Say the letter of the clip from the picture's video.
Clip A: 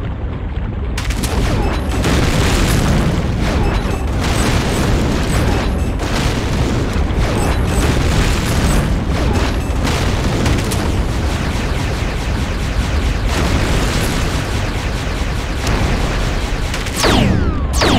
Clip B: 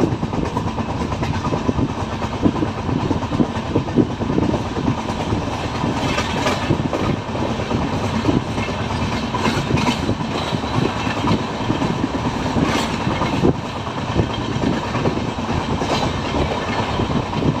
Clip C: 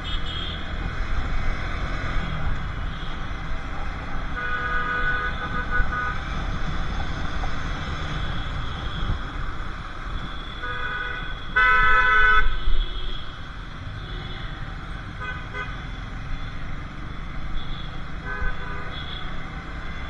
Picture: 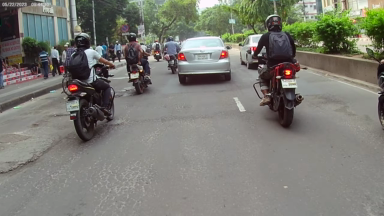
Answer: C